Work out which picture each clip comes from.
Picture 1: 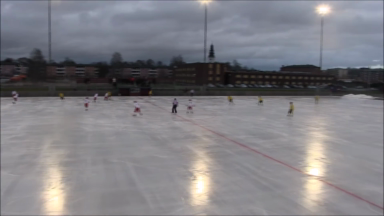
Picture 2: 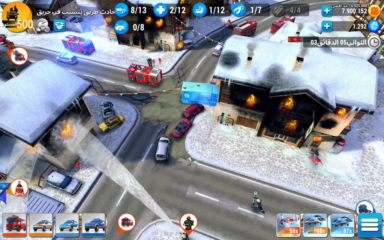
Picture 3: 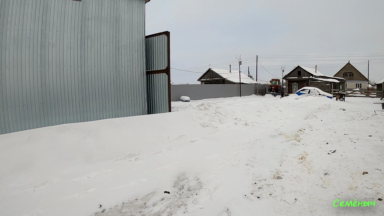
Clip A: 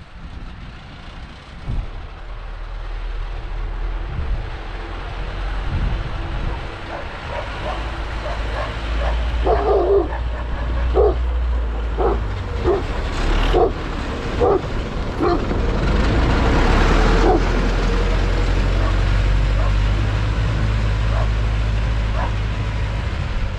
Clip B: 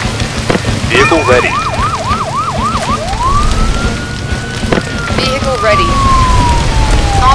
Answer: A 3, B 2